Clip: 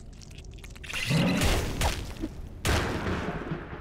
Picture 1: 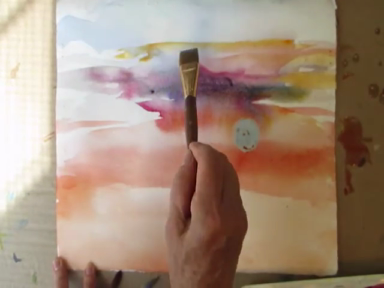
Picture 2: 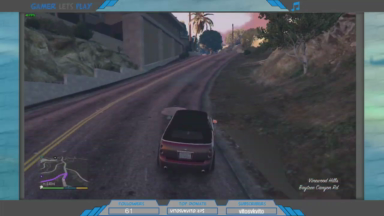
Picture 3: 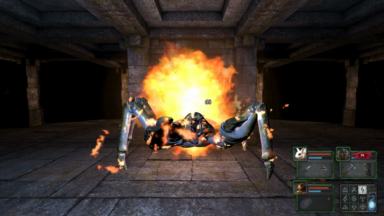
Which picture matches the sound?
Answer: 3